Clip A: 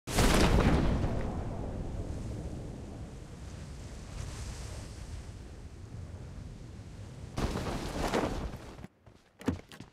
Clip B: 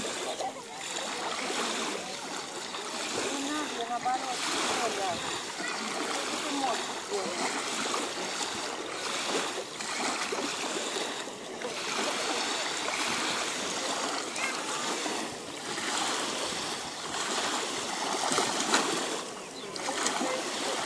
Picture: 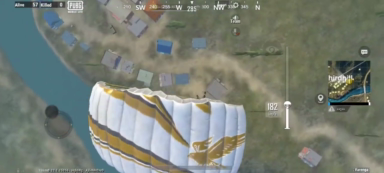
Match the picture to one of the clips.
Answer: A